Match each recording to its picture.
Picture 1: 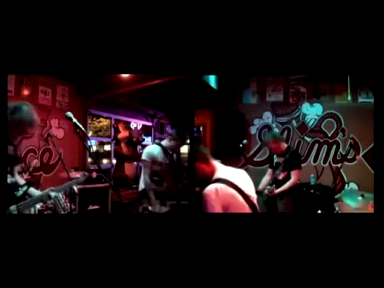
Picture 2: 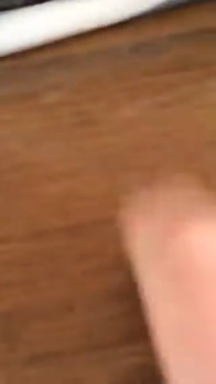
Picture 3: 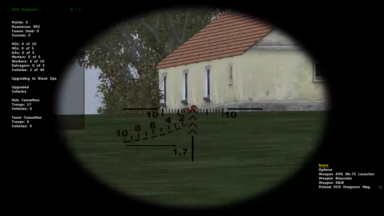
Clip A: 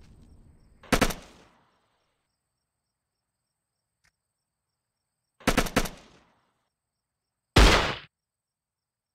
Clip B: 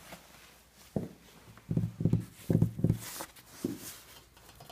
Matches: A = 3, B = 2